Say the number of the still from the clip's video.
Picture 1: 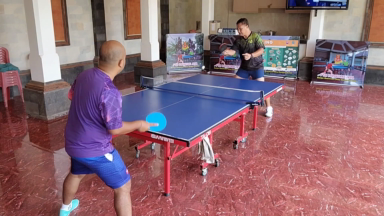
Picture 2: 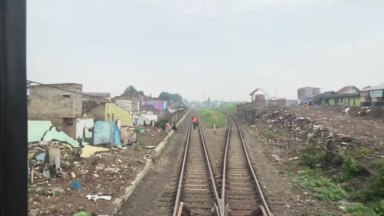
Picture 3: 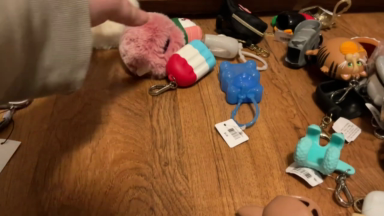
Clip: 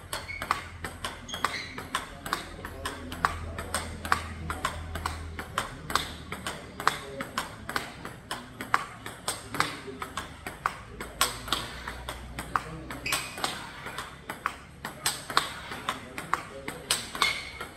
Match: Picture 1